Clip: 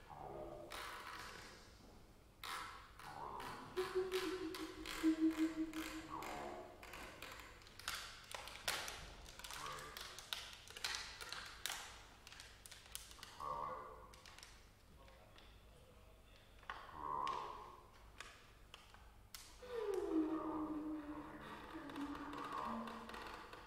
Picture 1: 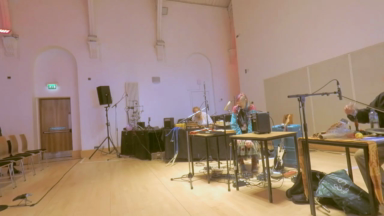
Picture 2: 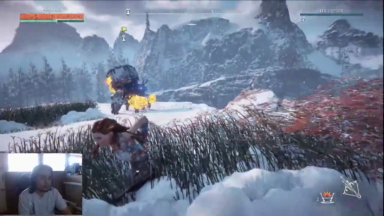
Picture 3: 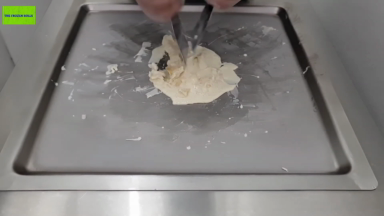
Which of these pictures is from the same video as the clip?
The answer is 1